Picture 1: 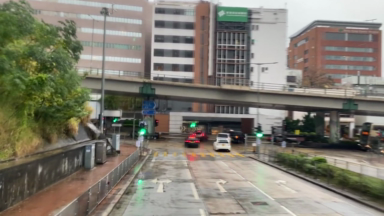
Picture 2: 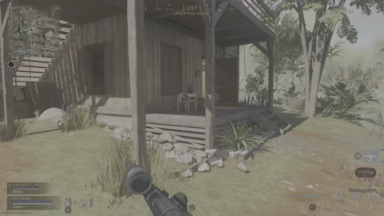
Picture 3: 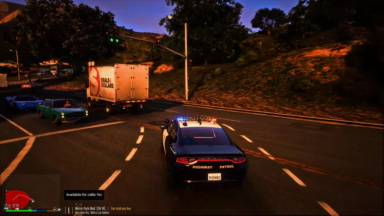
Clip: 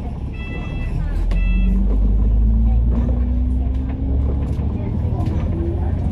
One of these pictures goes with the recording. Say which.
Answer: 1